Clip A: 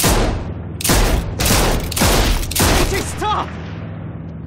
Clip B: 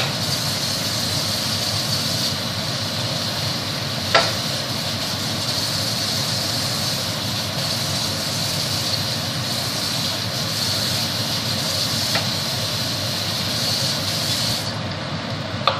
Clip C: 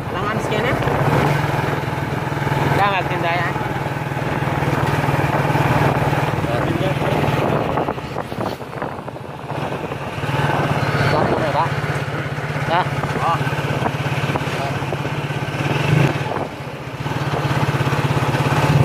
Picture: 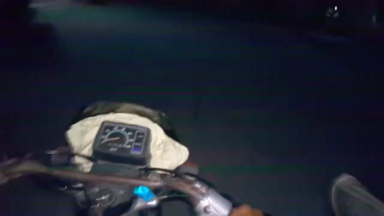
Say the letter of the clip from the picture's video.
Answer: C